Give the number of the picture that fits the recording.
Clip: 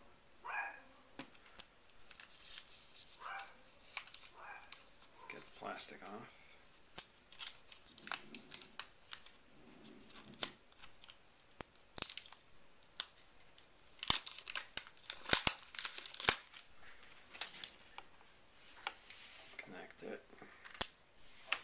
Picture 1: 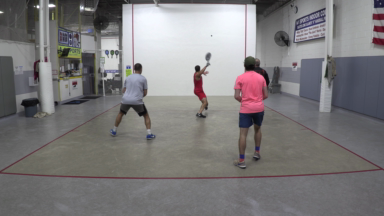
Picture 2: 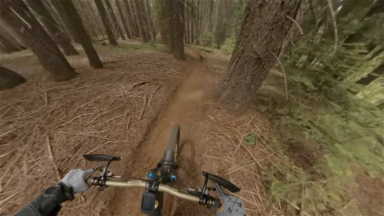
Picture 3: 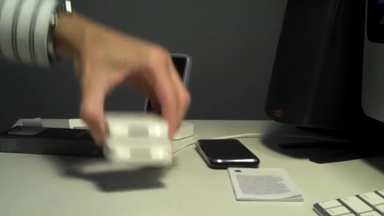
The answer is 3